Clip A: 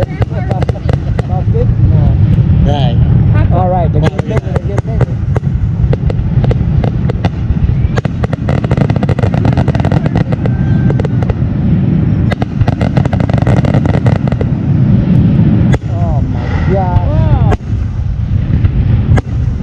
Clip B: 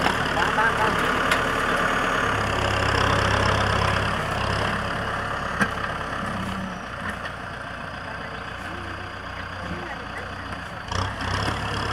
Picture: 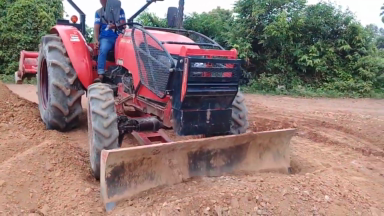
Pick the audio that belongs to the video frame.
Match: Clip B